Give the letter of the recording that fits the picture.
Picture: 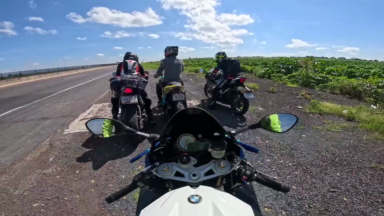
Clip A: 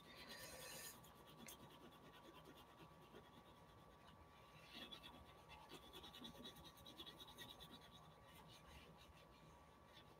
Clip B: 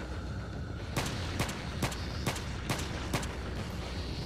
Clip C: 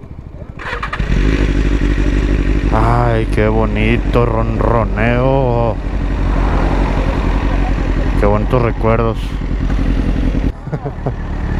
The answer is C